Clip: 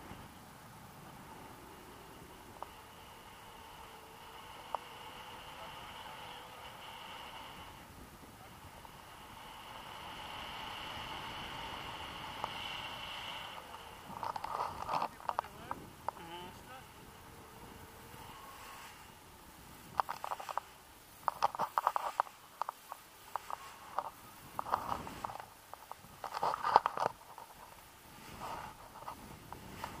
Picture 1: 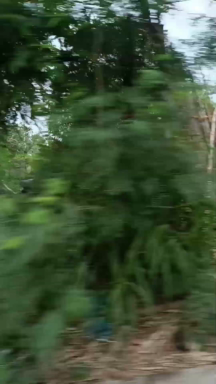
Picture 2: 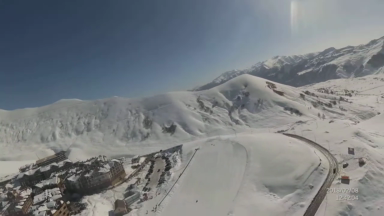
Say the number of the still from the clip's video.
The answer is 2